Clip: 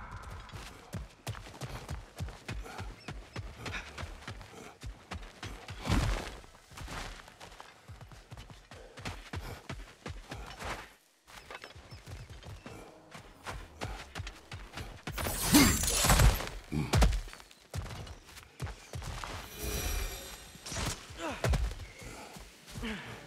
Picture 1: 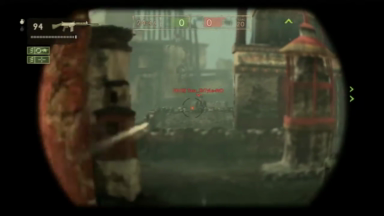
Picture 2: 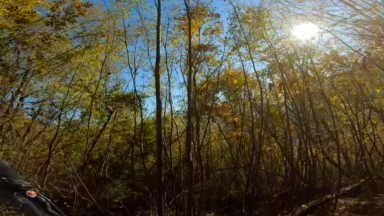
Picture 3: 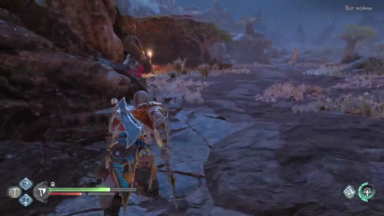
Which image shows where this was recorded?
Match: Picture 3